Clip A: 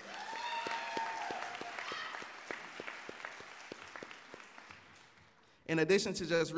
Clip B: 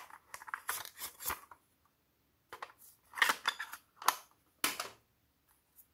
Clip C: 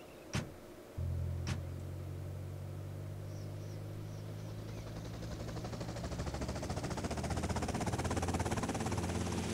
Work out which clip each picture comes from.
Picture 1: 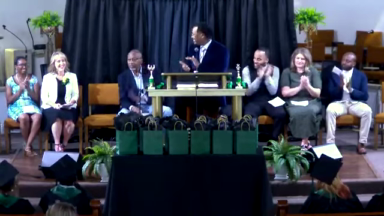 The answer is A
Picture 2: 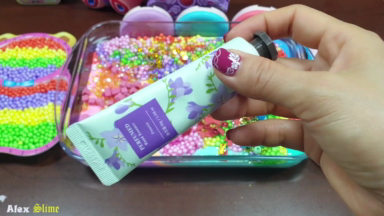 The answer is B